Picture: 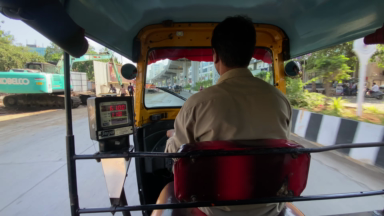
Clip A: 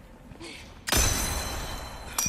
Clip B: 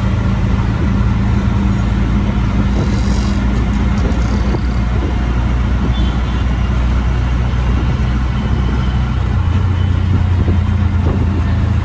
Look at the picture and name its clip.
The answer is B